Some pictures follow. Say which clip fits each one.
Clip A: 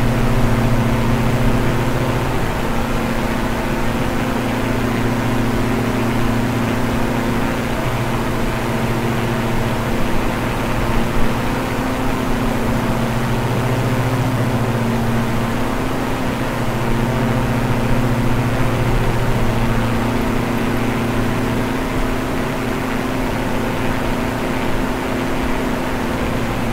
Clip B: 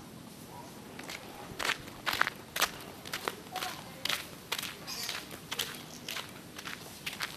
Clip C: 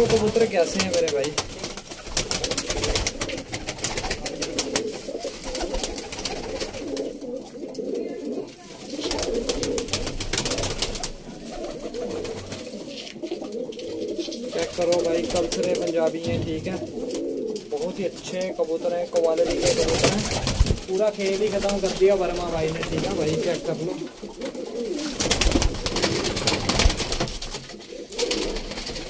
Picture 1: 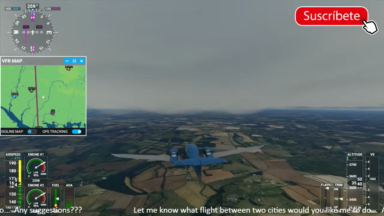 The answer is A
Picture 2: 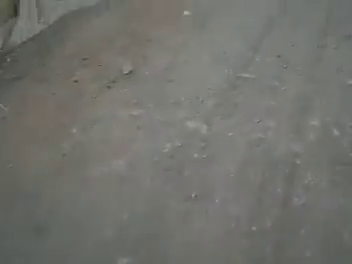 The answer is B